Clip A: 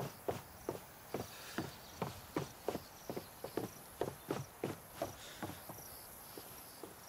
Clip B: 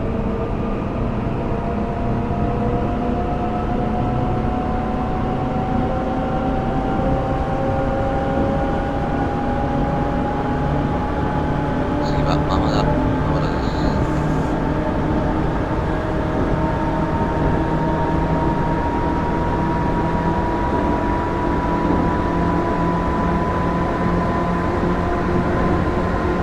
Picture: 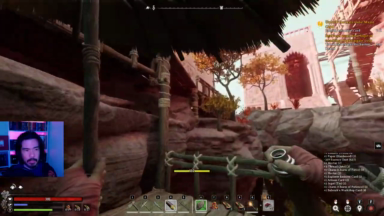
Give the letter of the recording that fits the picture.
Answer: A